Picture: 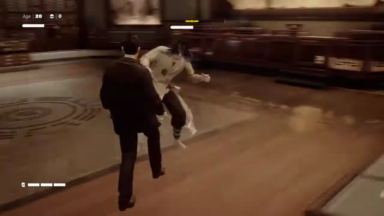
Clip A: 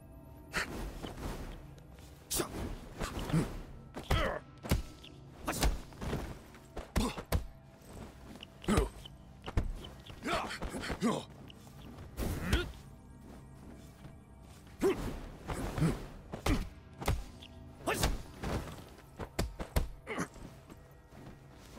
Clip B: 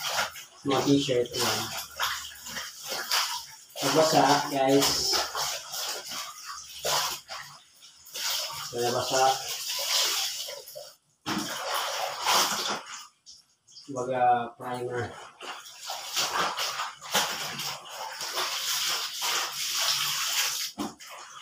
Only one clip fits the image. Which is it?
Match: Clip A